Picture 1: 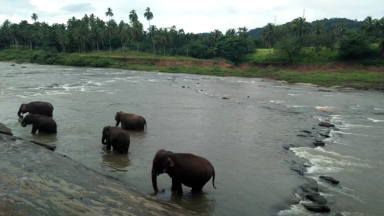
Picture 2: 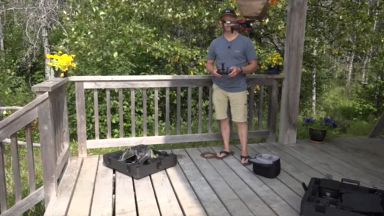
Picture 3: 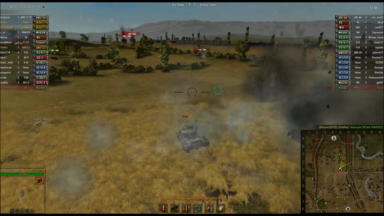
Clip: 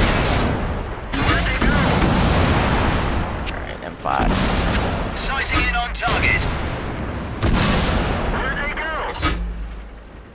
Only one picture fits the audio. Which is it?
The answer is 3